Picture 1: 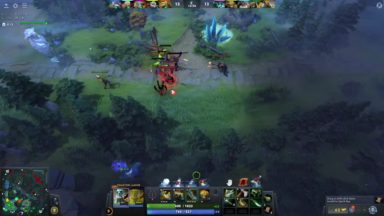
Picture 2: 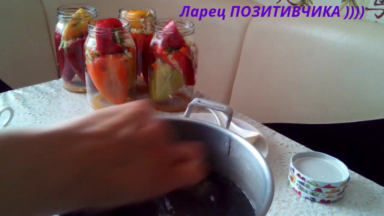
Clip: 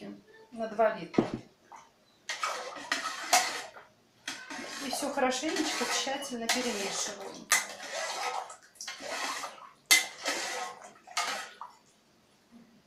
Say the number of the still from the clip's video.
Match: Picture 2